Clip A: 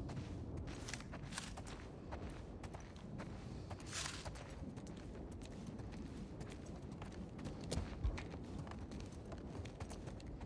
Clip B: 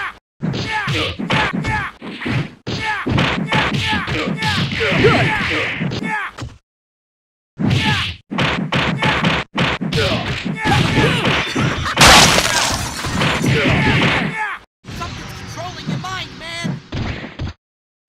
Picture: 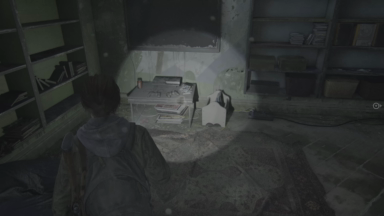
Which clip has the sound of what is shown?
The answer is A